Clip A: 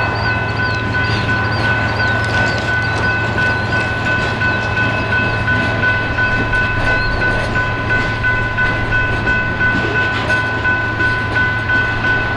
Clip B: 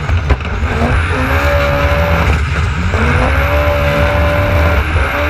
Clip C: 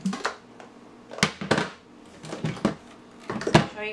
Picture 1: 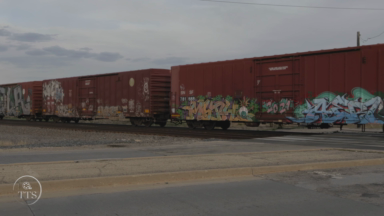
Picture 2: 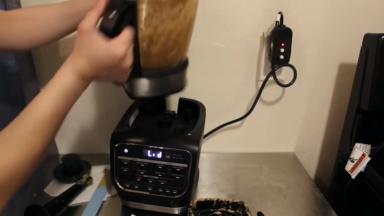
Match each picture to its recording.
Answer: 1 A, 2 C